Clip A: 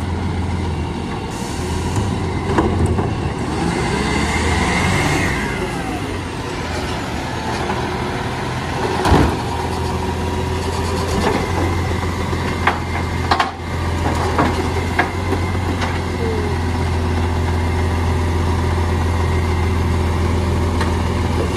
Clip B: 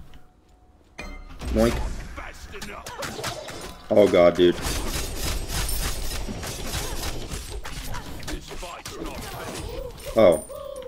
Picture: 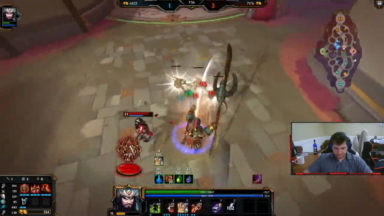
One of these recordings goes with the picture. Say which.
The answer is B